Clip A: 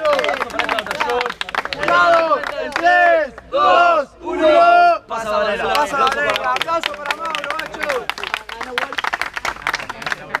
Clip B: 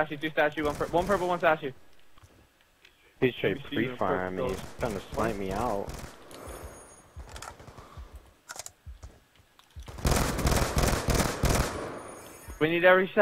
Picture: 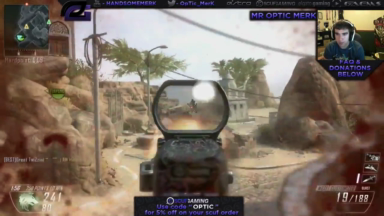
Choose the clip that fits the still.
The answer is B